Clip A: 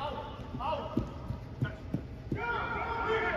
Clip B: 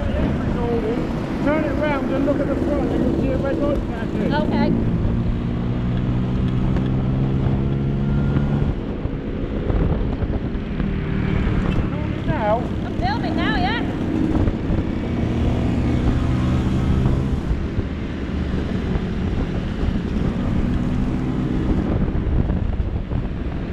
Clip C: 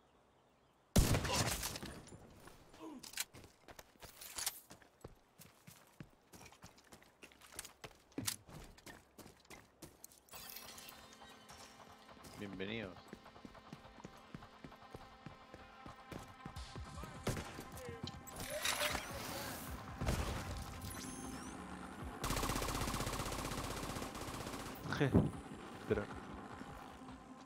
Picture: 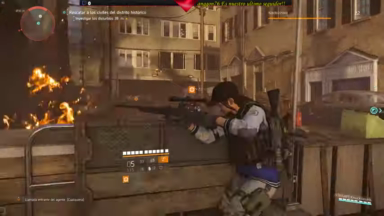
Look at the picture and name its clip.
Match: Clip C